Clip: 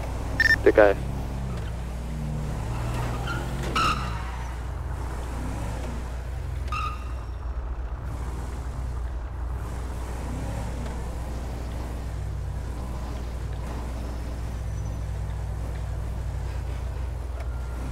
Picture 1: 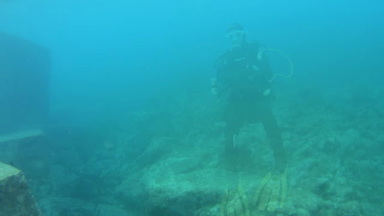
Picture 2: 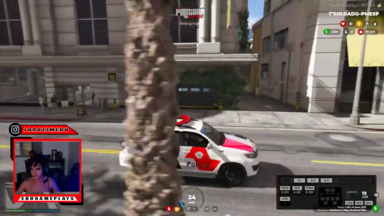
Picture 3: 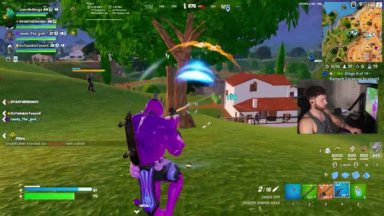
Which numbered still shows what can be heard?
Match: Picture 2